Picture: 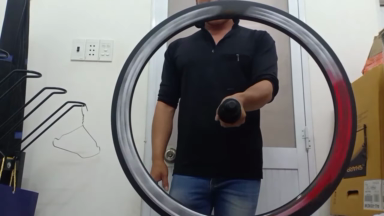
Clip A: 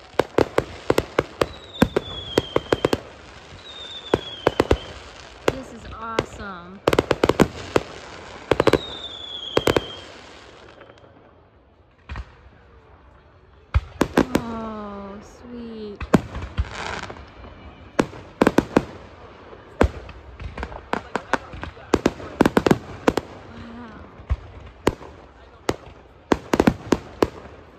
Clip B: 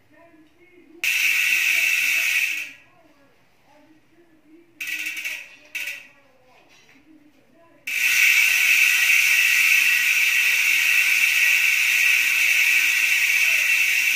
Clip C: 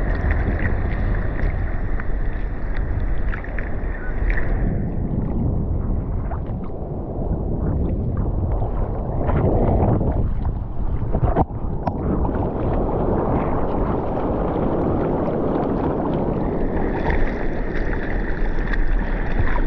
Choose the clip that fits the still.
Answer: B